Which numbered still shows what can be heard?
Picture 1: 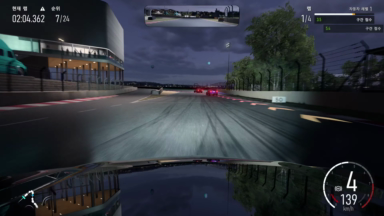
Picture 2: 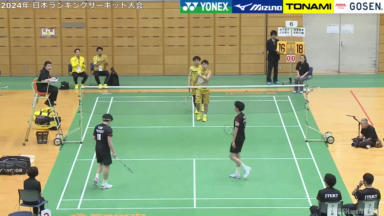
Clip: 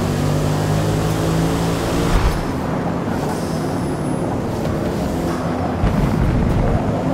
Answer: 1